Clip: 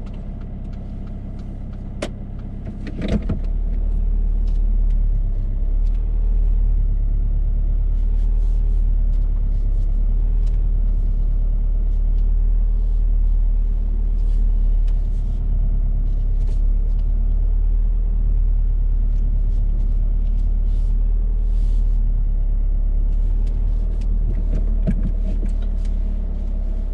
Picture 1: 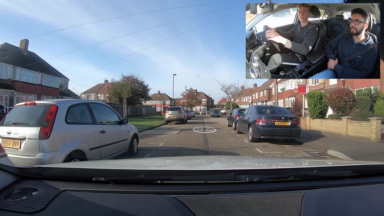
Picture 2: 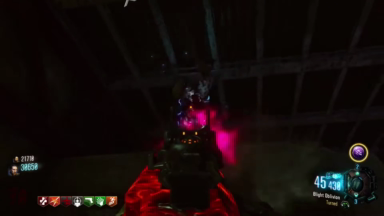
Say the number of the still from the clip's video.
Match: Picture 1